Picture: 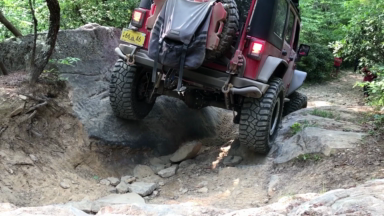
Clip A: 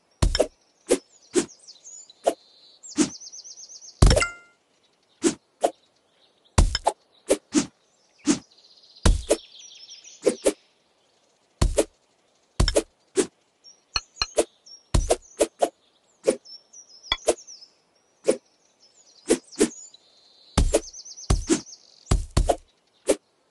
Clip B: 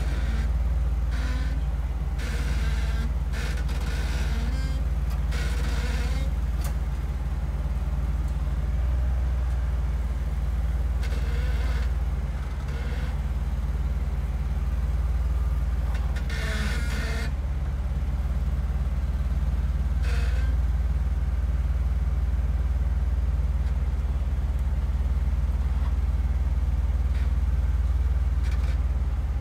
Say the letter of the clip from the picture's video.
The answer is B